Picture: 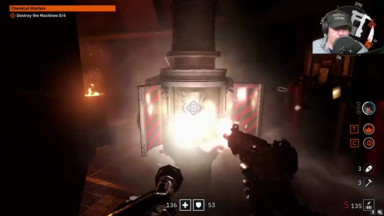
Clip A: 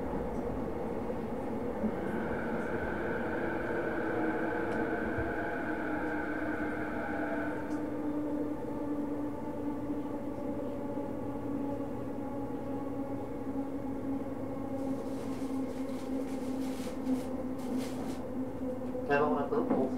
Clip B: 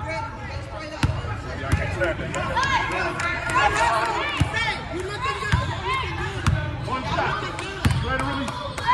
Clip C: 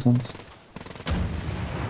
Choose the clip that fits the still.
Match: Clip C